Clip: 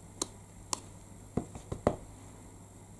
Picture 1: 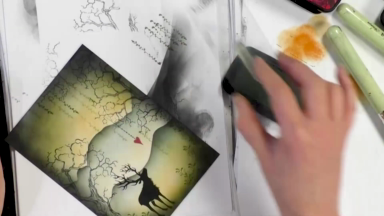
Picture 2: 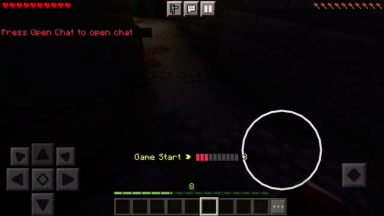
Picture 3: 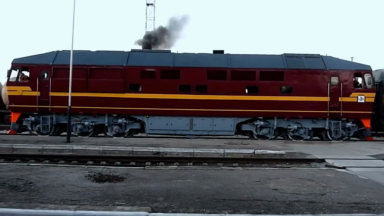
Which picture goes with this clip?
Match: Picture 1